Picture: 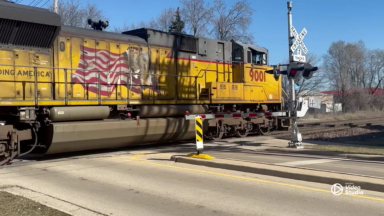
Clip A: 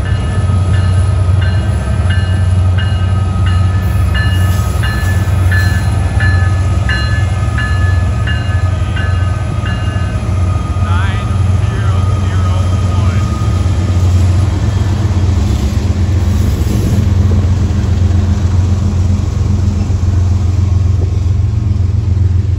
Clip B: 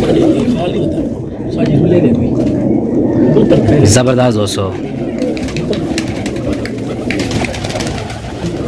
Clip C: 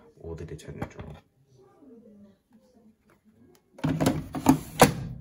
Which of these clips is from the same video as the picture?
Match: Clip A